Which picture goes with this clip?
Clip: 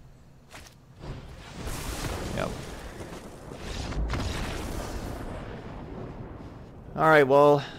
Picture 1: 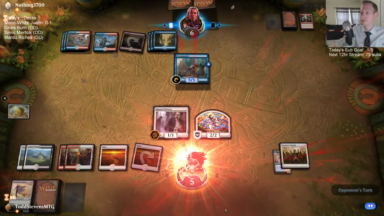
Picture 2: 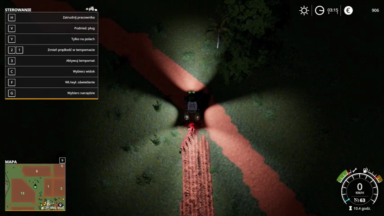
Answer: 1